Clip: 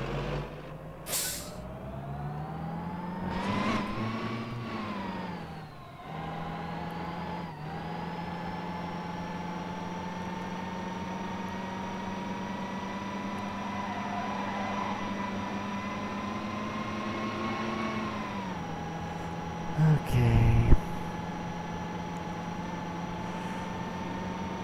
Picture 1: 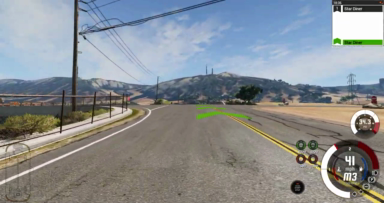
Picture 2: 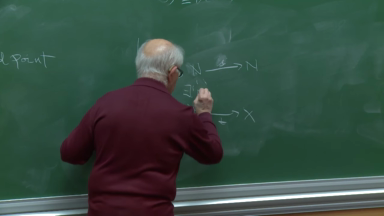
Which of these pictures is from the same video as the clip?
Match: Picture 1